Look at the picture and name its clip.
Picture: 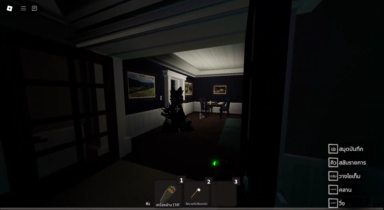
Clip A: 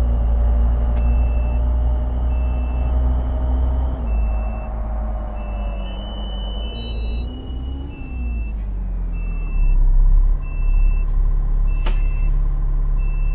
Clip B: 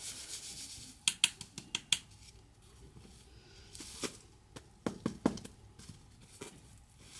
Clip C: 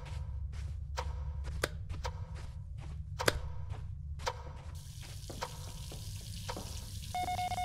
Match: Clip C